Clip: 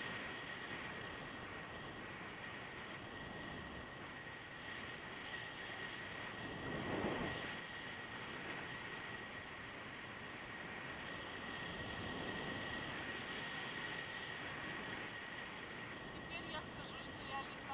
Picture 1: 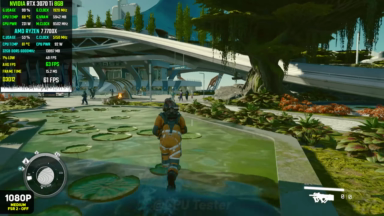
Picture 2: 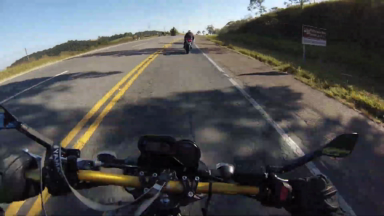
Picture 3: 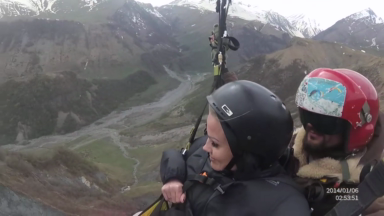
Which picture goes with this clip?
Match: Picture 3